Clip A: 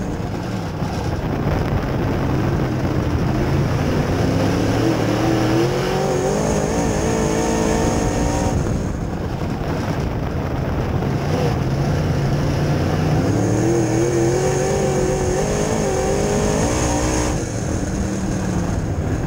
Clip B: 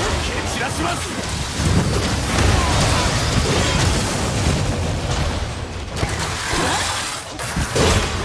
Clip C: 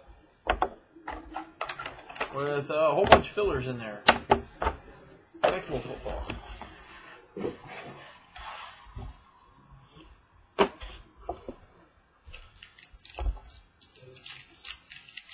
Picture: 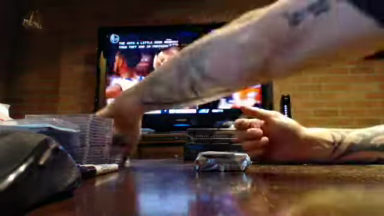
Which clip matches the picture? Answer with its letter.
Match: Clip C